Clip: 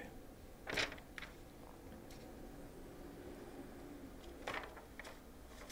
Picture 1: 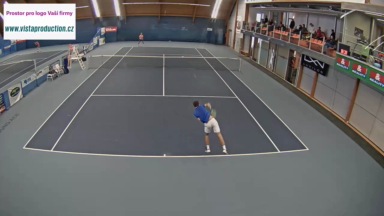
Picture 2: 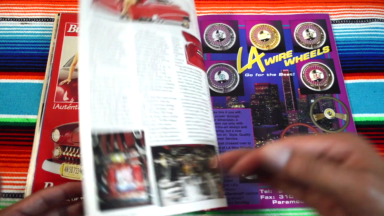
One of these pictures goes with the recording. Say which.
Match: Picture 2